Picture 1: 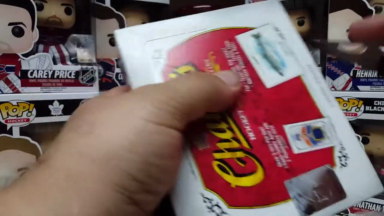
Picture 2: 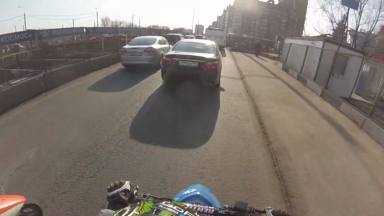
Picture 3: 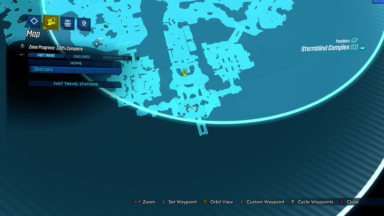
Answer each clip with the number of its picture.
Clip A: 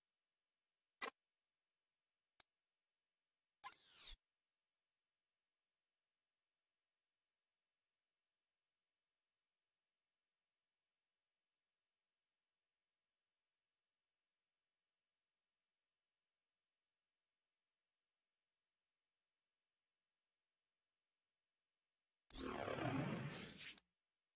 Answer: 3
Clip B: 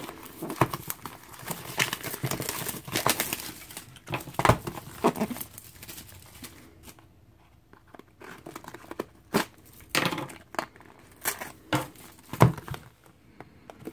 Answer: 1